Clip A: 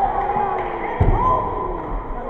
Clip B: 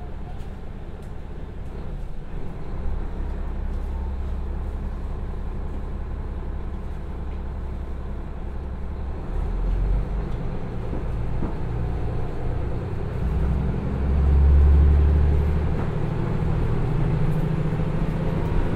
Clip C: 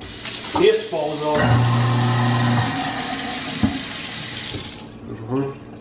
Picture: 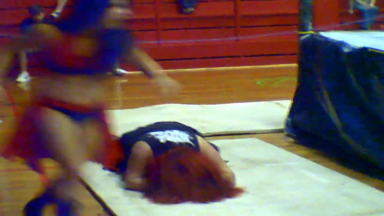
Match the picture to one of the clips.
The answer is A